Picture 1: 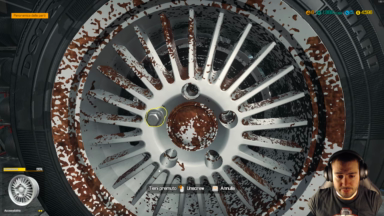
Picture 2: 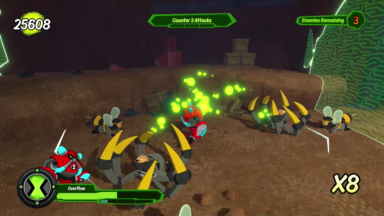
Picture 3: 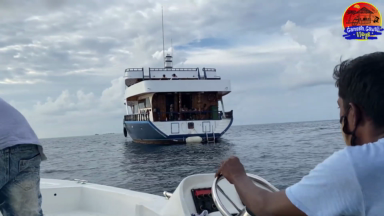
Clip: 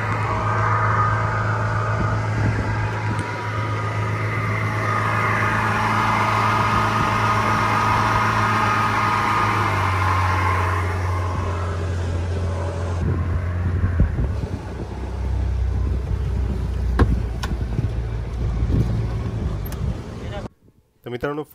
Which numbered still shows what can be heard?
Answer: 3